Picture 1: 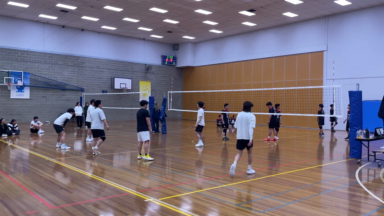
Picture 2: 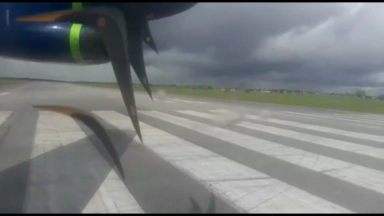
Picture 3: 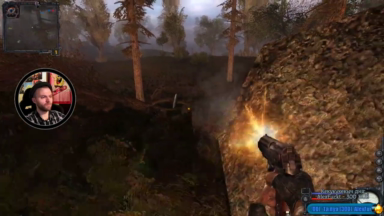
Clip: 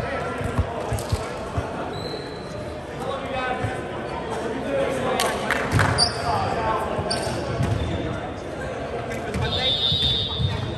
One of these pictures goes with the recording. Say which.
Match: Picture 1